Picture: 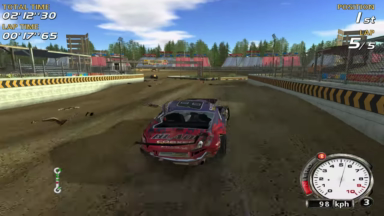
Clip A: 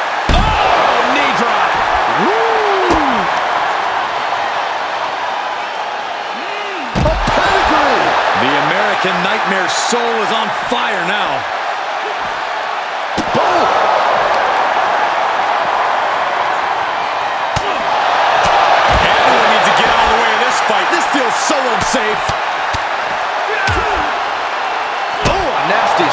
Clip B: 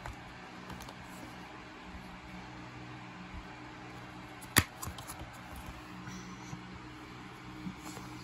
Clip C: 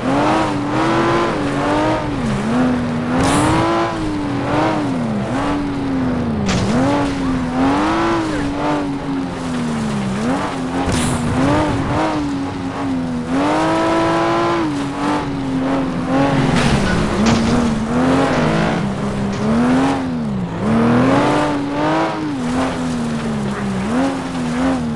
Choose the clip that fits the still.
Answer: C